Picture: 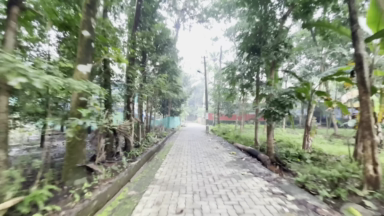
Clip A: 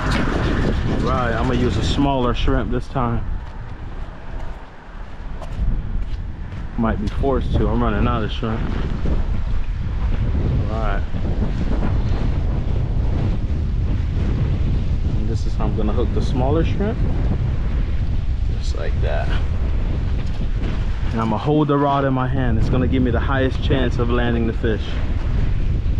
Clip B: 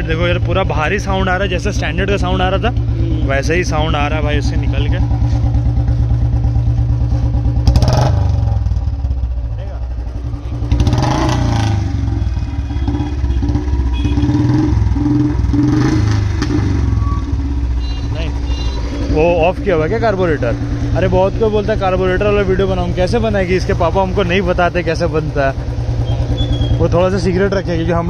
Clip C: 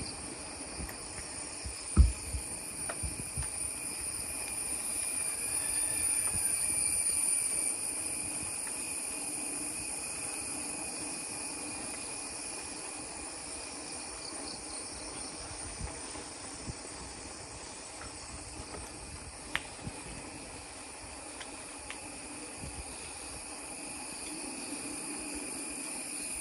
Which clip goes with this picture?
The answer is C